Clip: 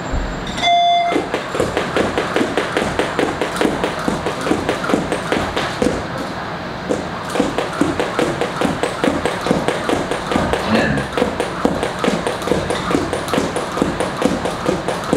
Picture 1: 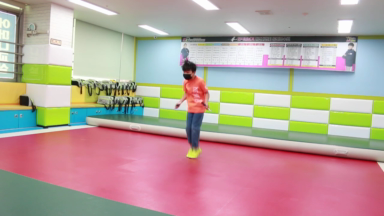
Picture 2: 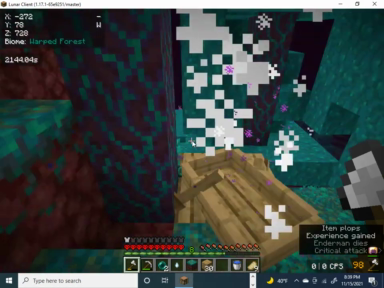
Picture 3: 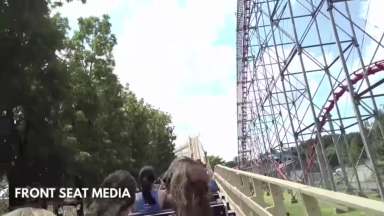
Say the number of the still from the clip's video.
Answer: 1